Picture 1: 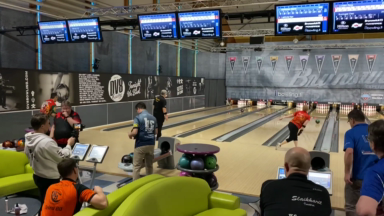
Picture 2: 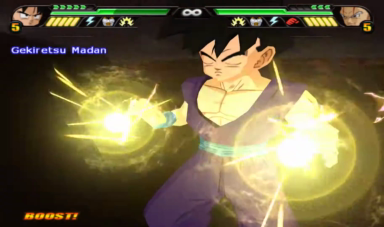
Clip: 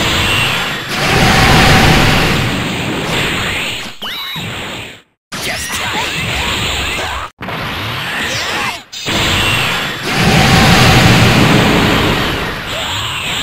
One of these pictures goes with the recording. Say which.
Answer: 2